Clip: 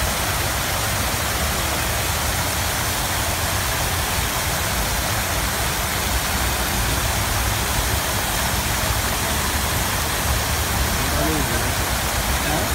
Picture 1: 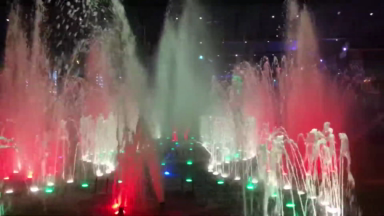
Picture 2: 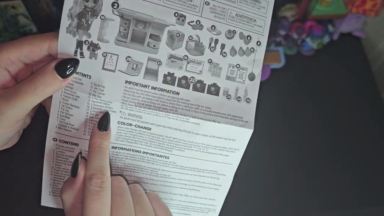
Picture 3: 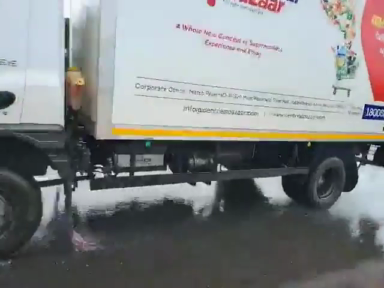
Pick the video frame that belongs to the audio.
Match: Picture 1